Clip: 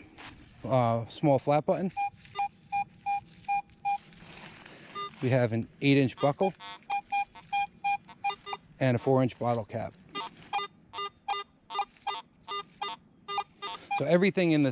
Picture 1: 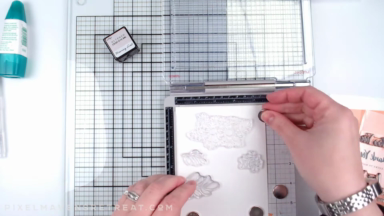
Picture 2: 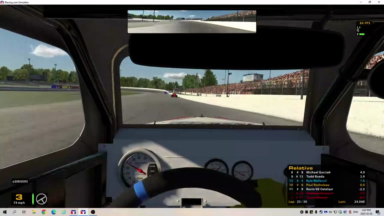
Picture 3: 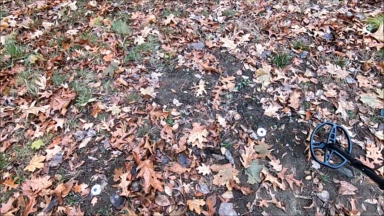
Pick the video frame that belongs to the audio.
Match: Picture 3